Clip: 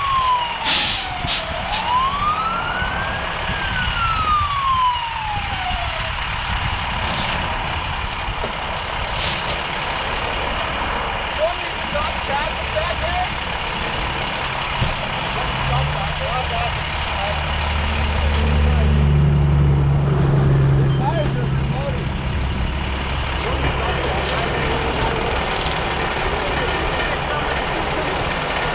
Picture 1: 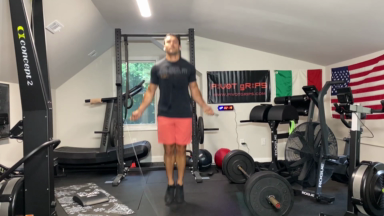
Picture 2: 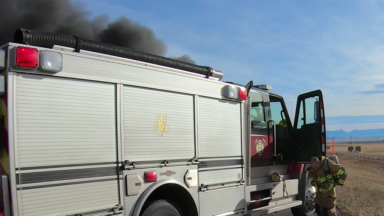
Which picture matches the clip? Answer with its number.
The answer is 2